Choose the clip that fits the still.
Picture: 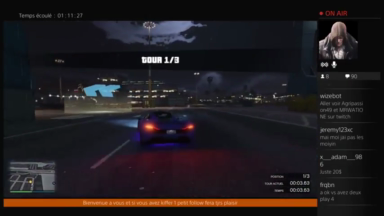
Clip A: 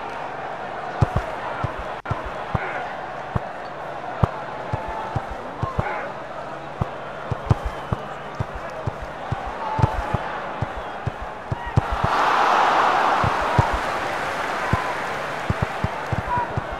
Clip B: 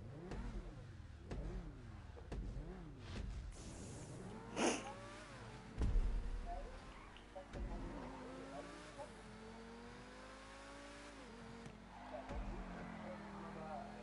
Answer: B